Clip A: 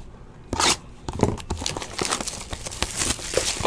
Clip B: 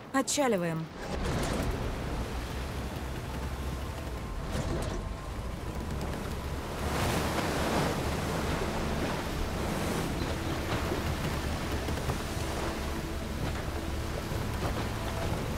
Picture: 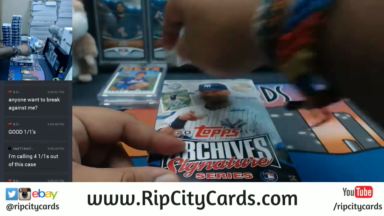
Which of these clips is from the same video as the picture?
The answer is A